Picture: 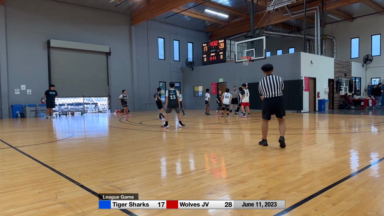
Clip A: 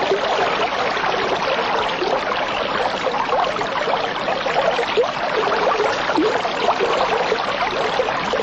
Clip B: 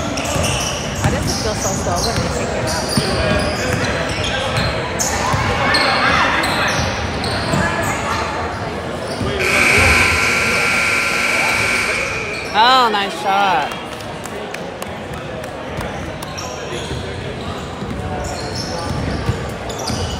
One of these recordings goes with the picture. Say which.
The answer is B